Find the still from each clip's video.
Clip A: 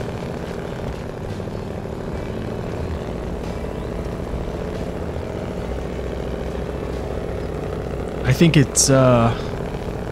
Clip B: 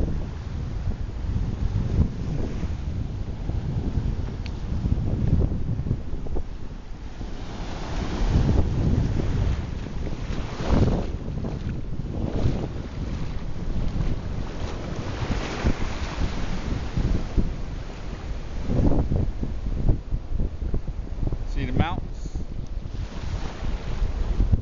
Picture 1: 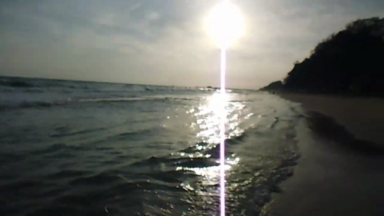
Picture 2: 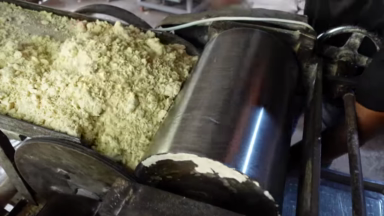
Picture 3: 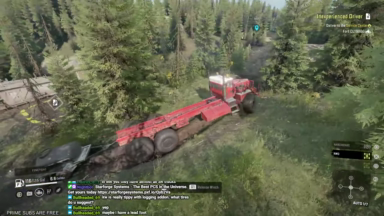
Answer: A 3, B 1